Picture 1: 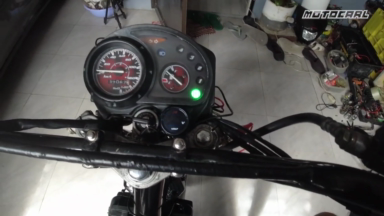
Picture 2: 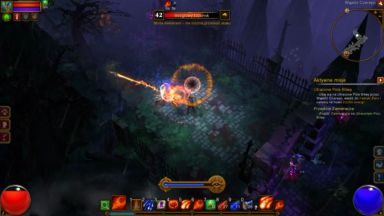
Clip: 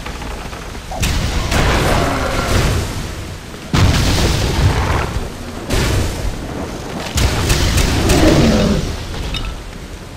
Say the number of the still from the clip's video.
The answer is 2